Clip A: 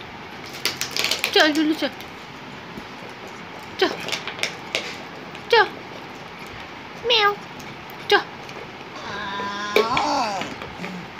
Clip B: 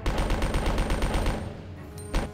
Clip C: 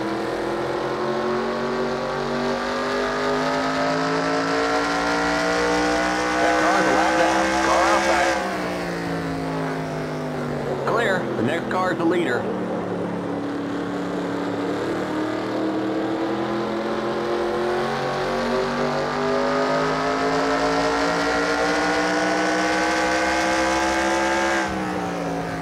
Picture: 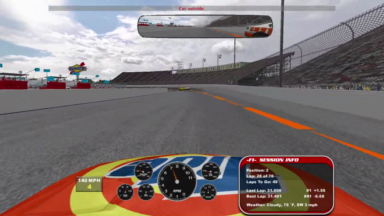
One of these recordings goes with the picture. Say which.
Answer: C